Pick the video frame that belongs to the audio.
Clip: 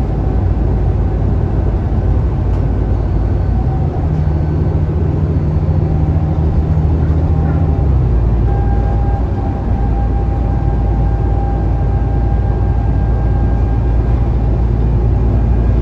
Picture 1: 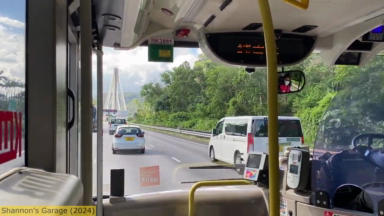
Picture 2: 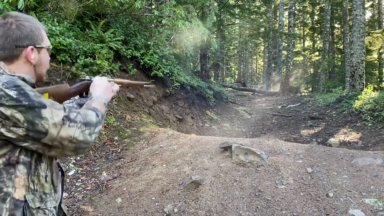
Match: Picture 1